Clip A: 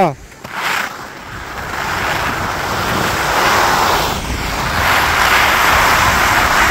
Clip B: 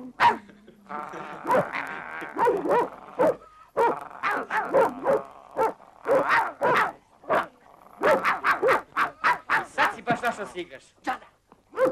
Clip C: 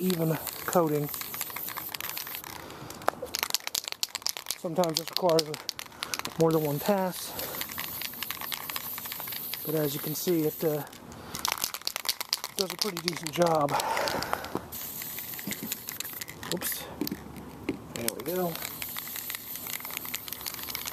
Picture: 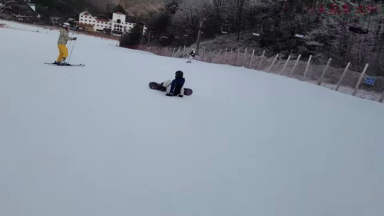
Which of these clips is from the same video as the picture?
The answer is A